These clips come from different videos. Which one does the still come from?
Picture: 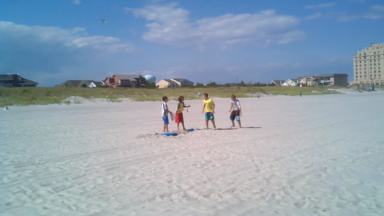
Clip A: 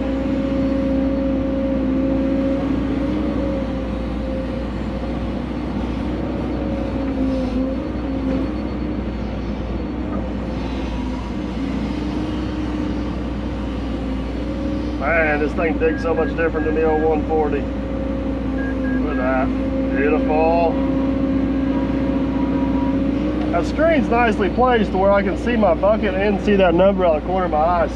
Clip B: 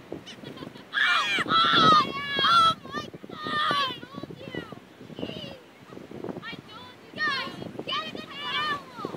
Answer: B